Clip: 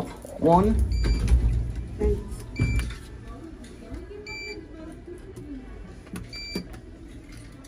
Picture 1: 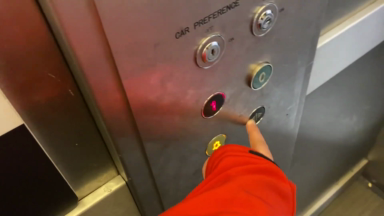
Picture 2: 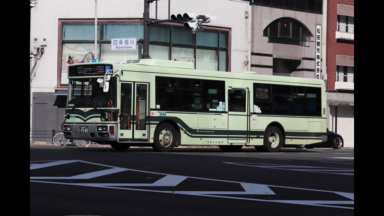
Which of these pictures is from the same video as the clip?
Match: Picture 1